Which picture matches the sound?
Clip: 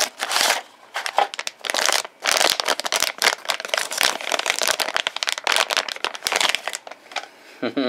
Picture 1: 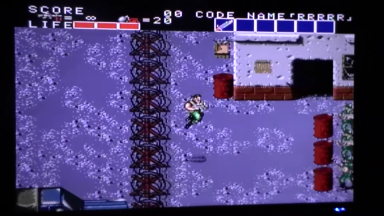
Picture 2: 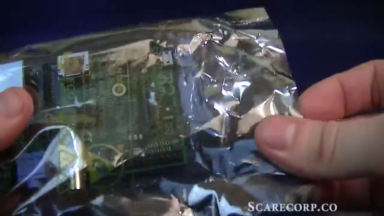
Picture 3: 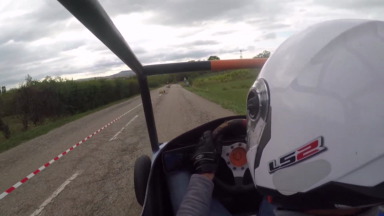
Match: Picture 2